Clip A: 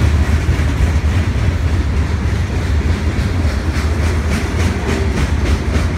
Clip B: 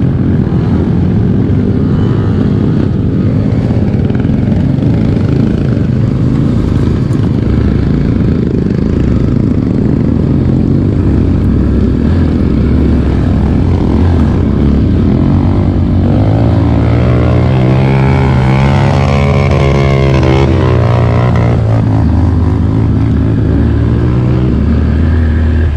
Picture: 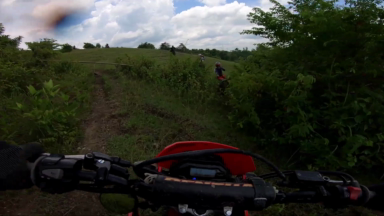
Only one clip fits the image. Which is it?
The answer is B